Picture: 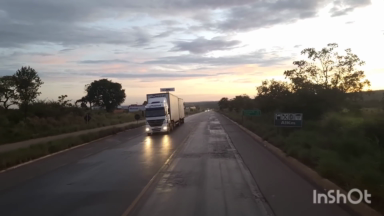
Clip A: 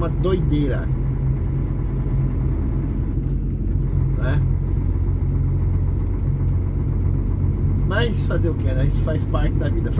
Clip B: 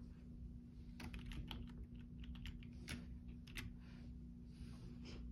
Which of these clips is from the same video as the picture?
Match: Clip A